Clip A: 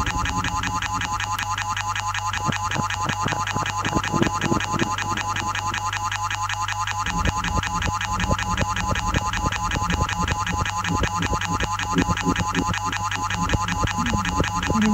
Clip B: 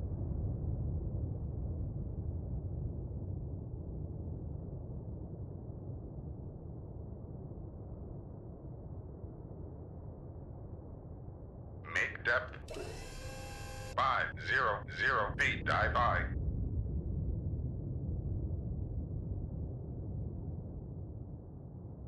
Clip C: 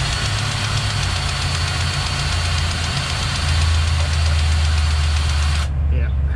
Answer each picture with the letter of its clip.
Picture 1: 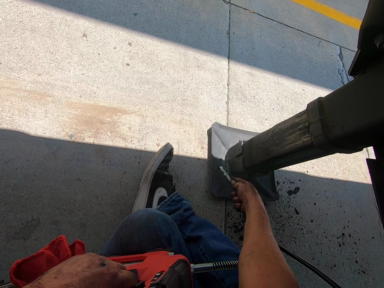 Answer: C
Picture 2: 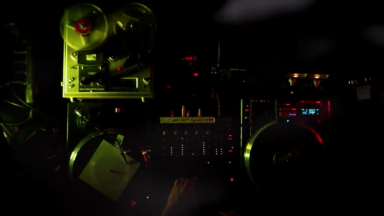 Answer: A